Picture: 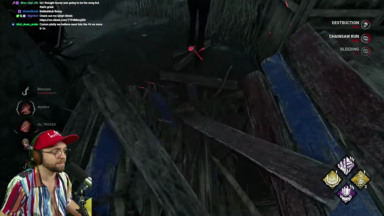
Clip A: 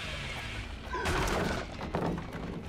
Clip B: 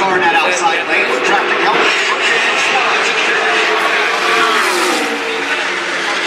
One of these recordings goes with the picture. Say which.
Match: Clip A